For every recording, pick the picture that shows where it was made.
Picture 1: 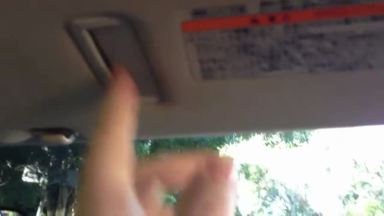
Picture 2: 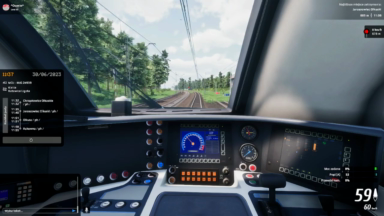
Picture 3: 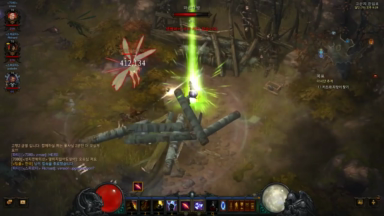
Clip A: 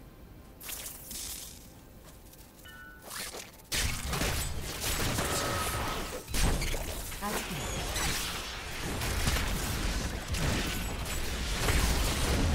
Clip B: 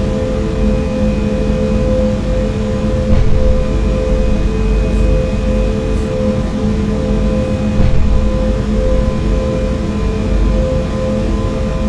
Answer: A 3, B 2